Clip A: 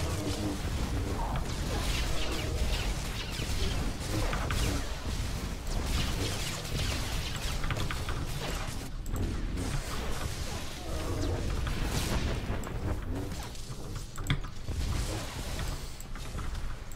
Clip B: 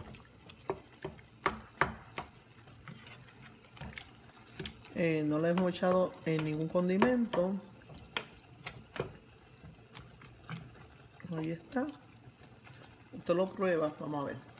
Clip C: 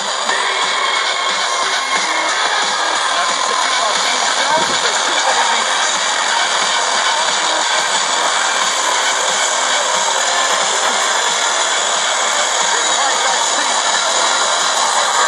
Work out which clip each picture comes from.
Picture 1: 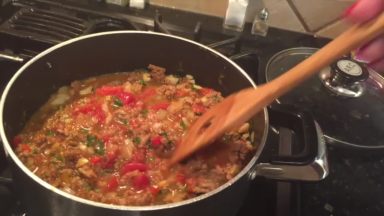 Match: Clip B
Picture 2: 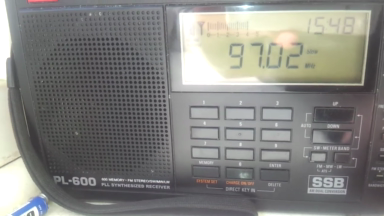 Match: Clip C